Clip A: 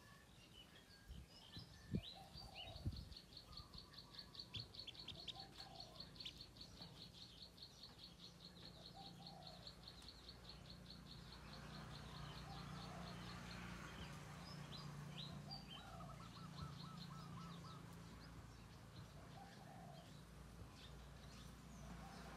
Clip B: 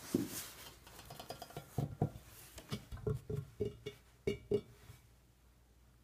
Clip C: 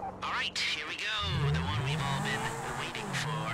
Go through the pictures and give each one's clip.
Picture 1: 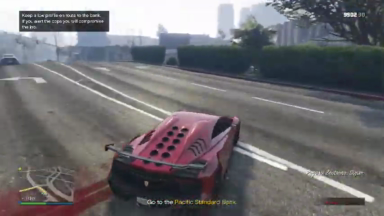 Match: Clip C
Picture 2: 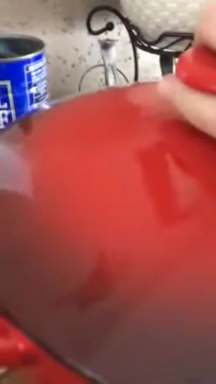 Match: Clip B